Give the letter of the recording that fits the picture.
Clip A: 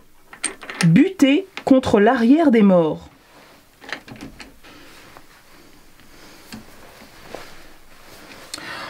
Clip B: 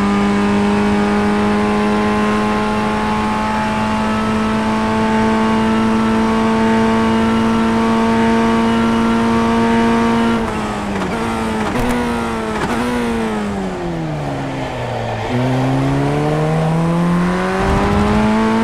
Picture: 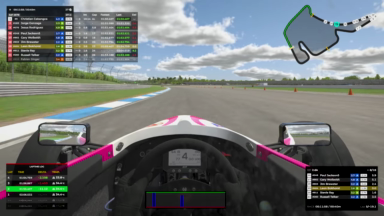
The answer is B